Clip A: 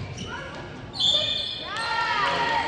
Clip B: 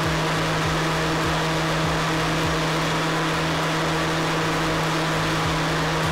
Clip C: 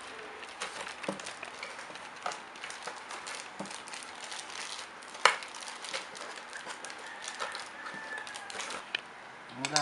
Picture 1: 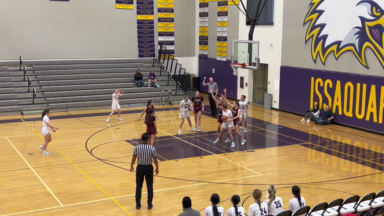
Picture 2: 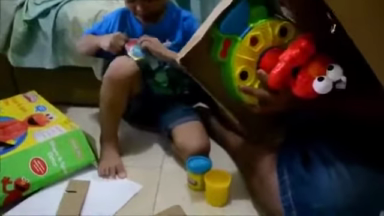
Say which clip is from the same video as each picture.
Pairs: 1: A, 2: C